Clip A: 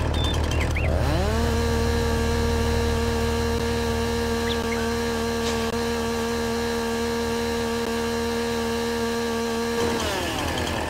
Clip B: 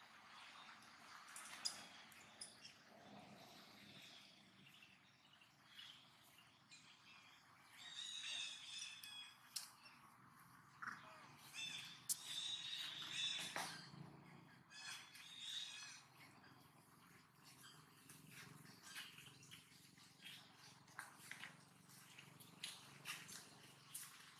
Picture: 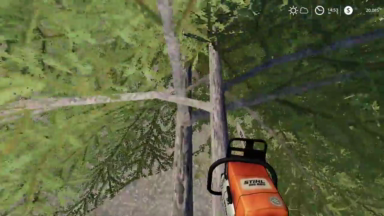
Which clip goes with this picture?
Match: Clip A